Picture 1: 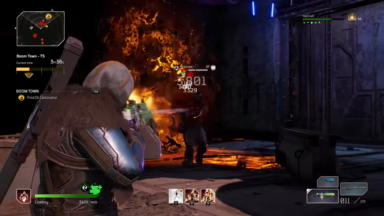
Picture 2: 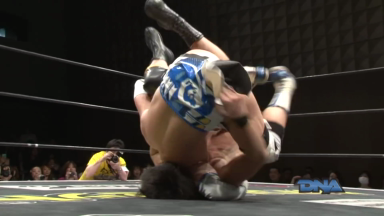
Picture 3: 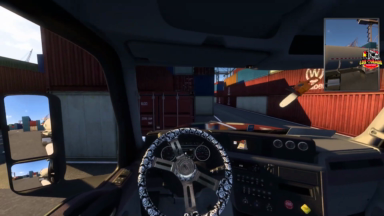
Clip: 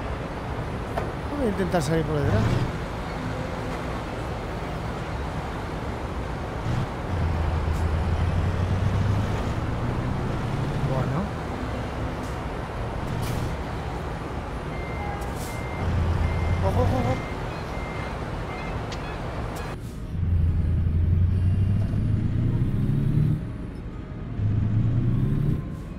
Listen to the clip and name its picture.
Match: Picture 3